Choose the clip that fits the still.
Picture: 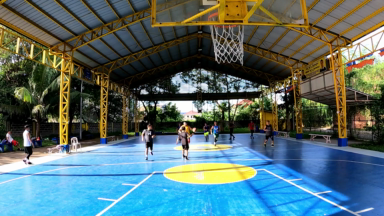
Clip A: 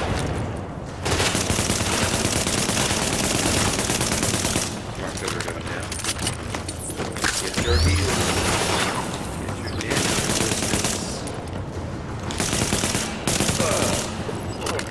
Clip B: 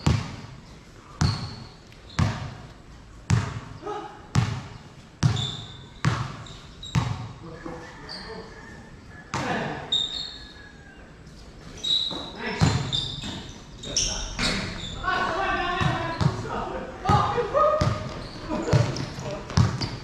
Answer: B